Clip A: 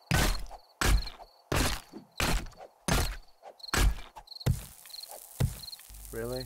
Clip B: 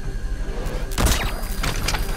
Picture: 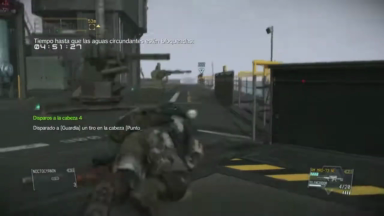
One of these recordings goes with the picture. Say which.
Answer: B